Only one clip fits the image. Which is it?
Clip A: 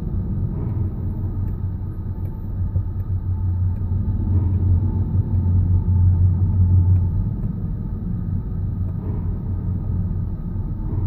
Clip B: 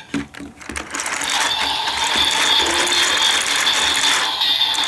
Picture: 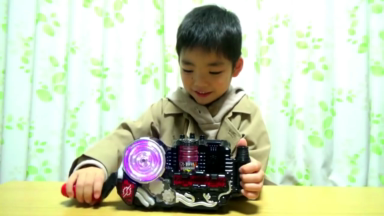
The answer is B